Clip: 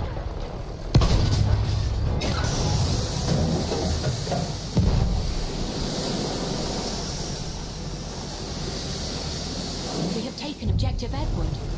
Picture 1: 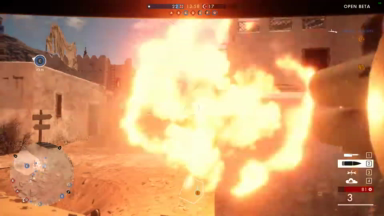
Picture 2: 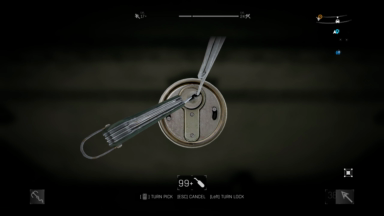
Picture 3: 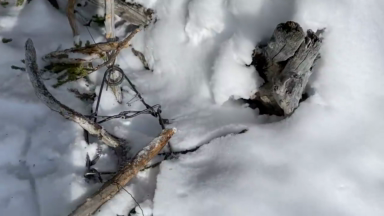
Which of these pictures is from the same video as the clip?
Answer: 1